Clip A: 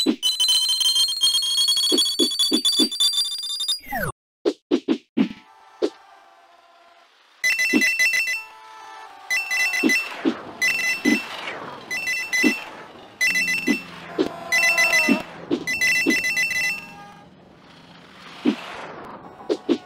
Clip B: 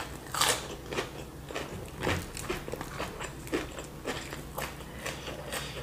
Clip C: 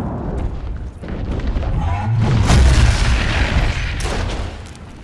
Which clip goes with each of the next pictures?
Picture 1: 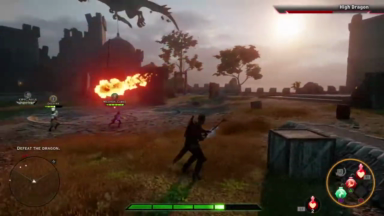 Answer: C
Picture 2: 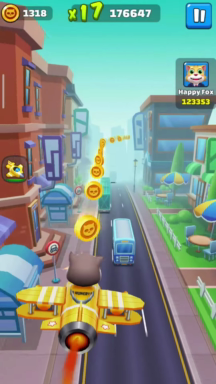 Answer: A